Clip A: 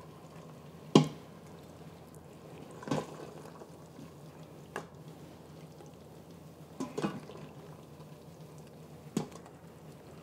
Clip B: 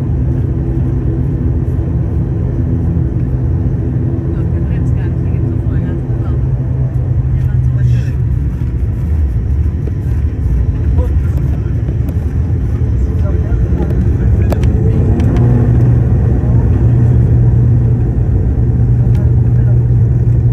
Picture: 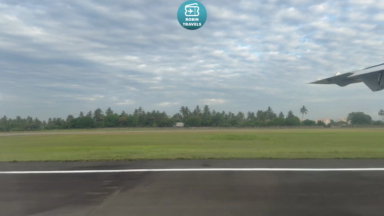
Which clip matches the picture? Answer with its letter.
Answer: B